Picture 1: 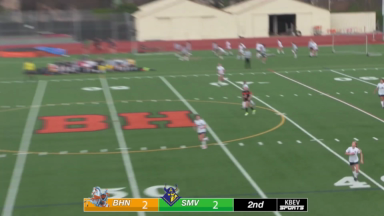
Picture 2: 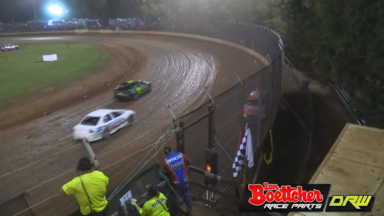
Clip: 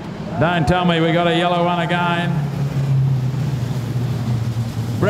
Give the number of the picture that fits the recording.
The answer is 2